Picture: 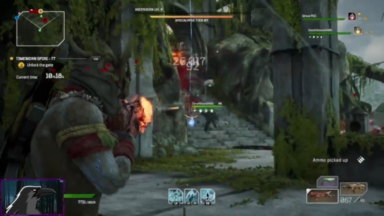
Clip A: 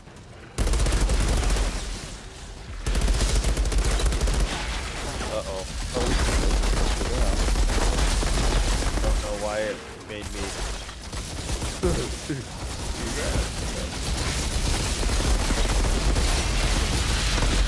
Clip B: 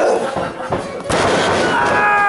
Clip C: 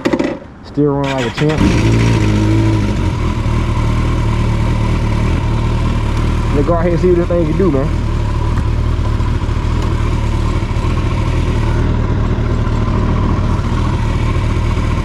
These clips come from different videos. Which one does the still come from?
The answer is A